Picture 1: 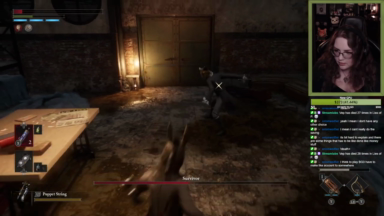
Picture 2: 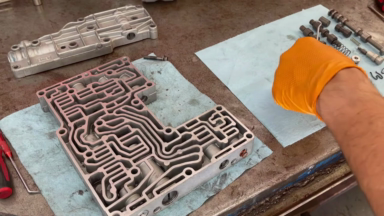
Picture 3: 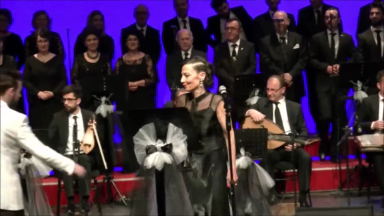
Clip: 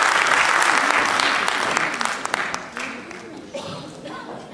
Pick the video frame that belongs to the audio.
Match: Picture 3